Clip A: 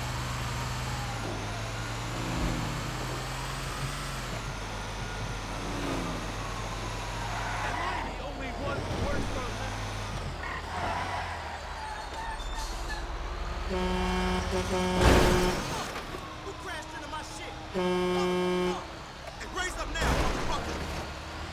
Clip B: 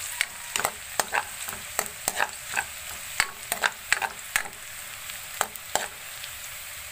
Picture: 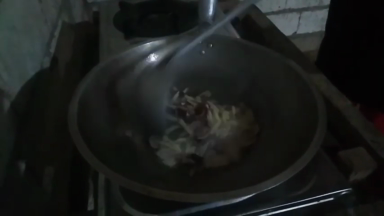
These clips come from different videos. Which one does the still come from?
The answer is B